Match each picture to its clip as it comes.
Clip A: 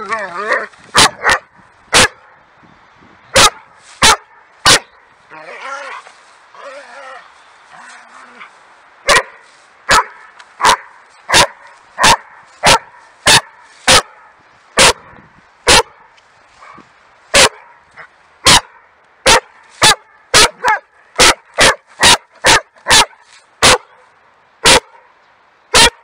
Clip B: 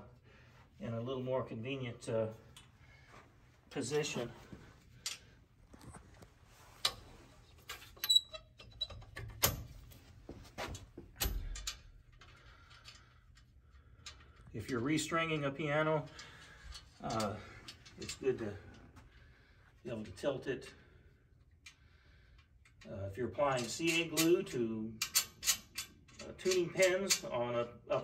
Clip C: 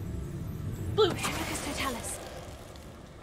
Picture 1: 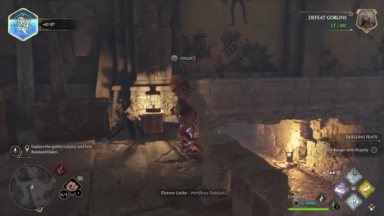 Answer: C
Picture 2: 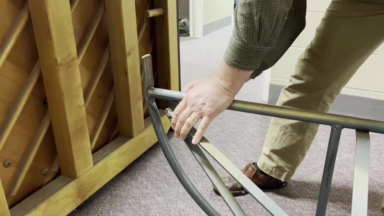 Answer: B